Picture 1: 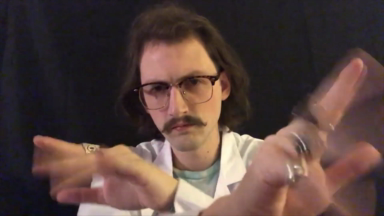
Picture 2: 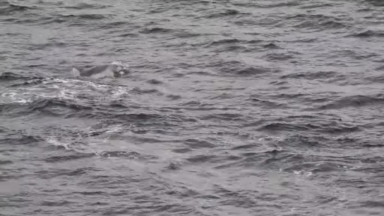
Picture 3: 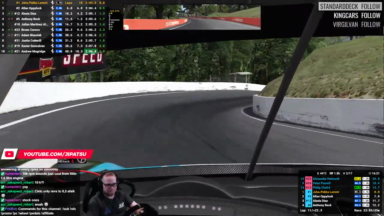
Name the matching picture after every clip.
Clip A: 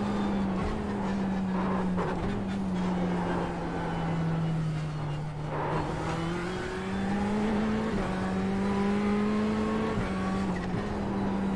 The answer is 3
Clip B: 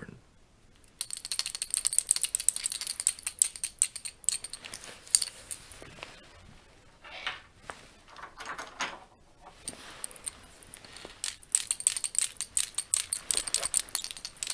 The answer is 1